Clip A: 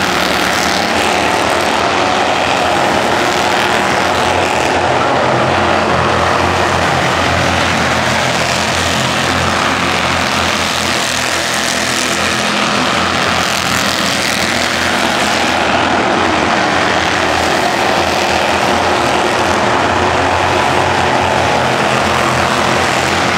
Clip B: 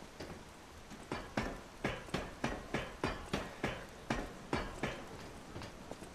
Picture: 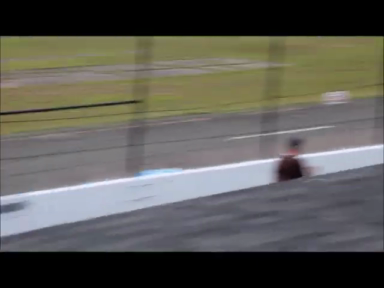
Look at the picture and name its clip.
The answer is A